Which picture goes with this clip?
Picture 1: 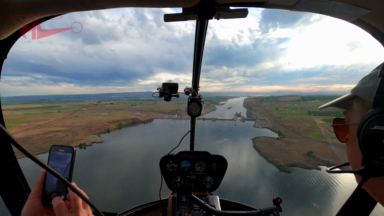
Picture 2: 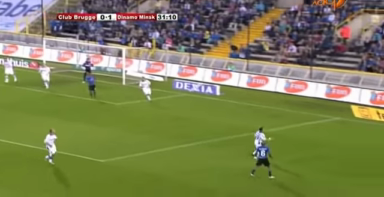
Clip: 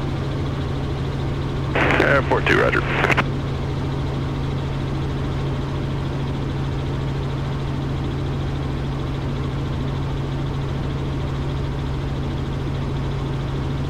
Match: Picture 1